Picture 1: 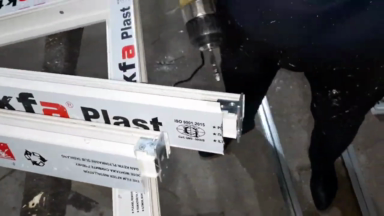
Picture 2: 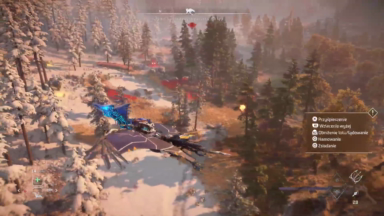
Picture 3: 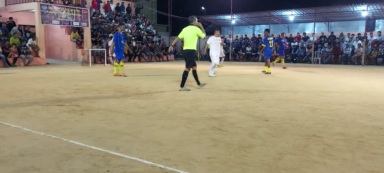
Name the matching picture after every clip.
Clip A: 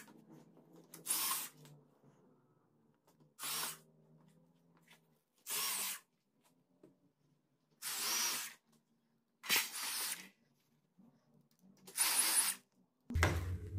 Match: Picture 1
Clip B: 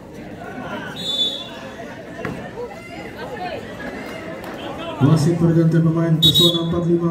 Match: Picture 3